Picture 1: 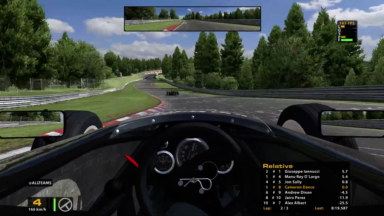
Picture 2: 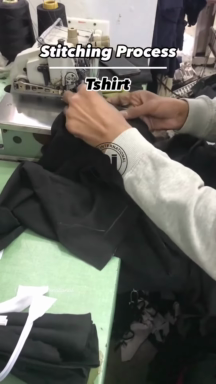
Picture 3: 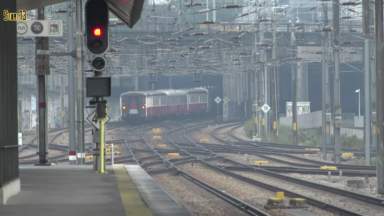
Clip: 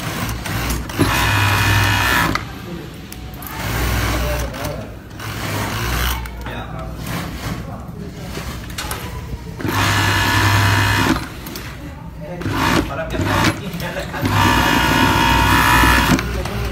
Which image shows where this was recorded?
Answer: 2